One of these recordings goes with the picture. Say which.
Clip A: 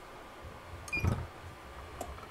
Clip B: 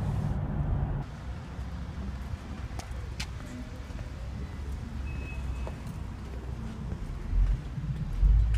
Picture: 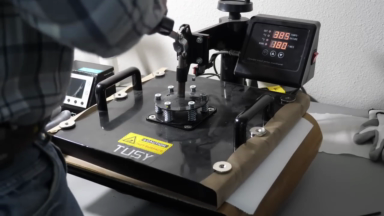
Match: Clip A